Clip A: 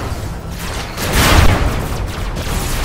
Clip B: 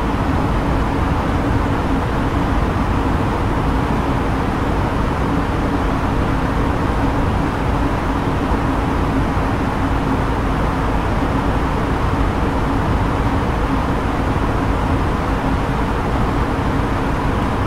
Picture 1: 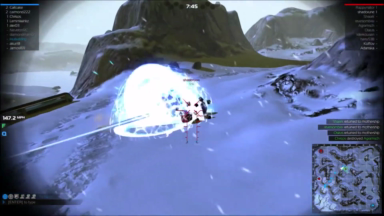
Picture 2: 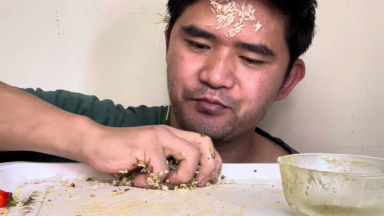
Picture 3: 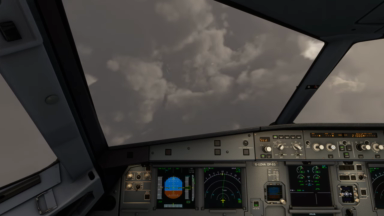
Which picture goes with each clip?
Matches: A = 1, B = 3